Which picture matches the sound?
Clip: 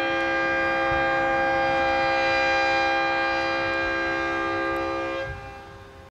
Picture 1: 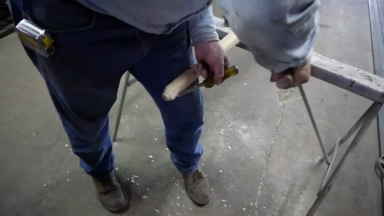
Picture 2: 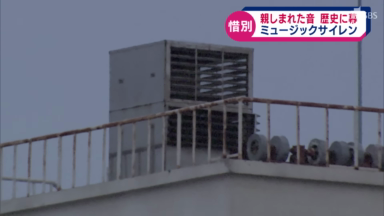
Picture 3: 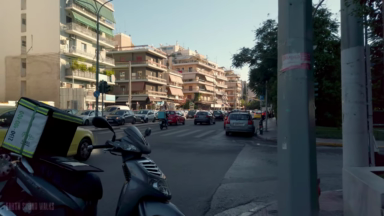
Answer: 2